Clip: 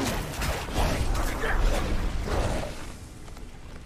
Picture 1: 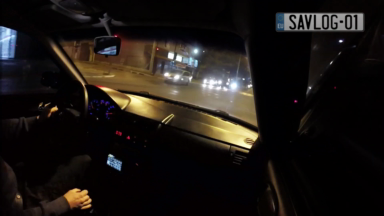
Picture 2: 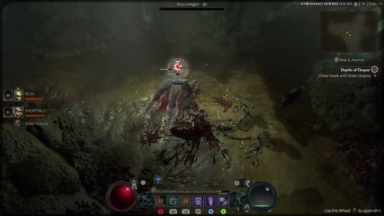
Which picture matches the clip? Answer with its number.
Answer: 2